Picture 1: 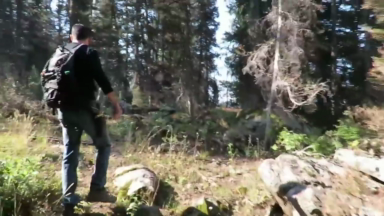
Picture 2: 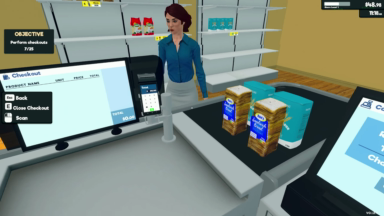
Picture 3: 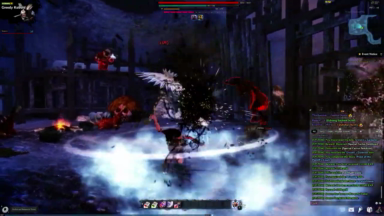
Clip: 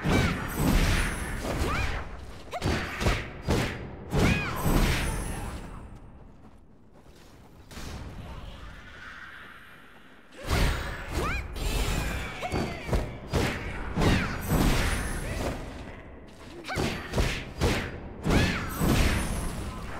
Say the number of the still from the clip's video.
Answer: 3